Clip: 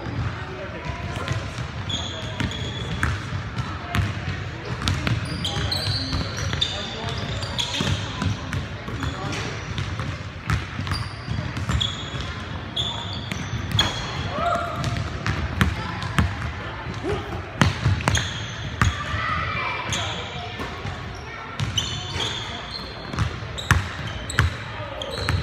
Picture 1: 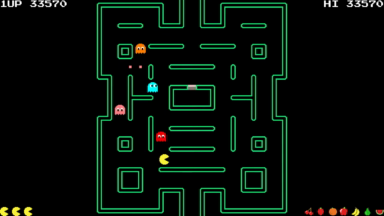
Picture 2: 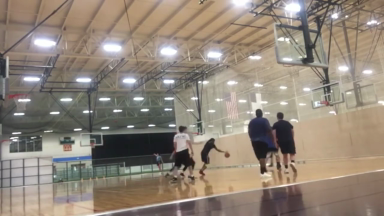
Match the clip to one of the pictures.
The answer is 2